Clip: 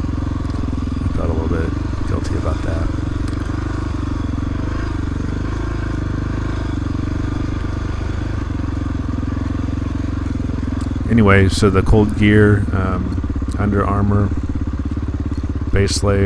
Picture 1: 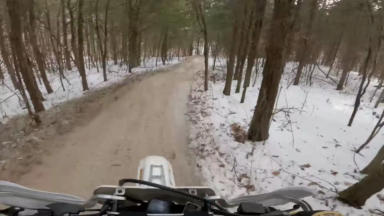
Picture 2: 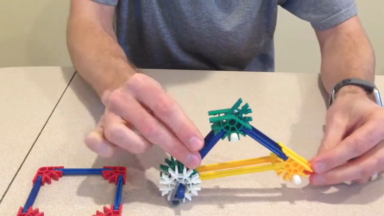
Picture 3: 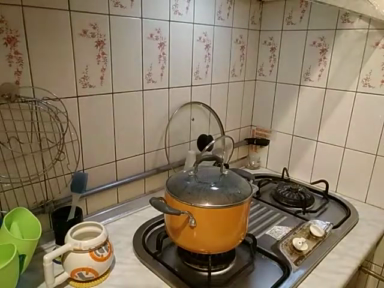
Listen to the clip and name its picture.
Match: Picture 1